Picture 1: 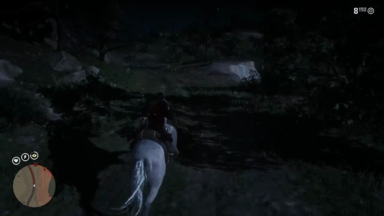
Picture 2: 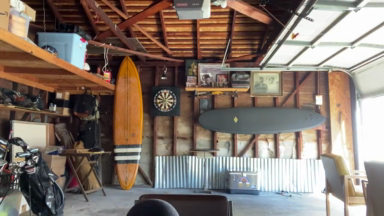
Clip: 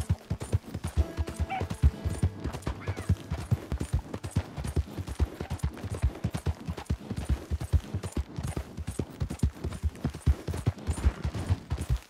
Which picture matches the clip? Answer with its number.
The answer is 1